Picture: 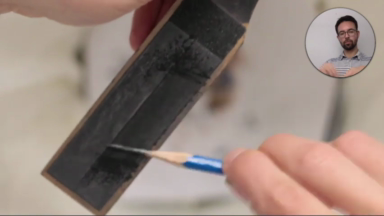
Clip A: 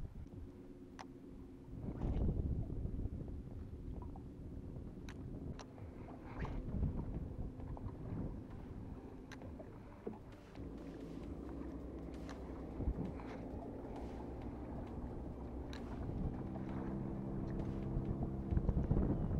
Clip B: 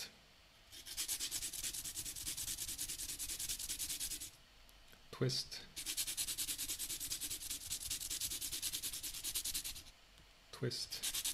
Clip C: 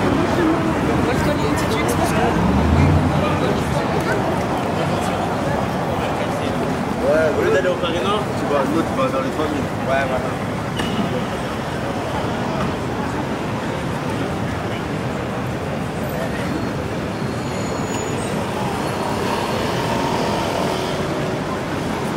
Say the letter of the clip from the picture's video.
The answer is B